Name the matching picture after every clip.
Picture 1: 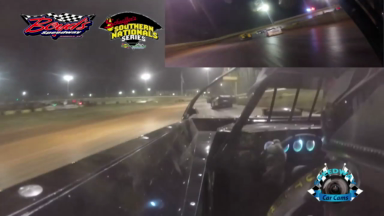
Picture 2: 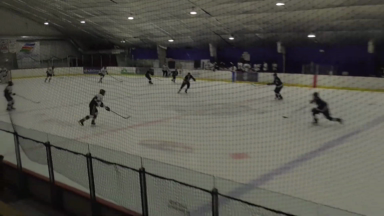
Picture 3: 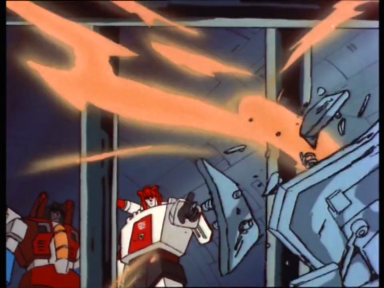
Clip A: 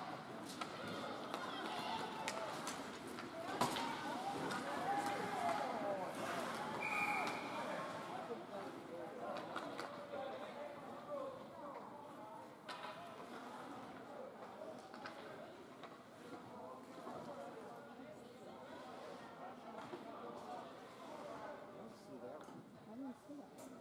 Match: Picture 2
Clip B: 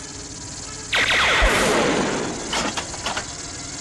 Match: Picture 3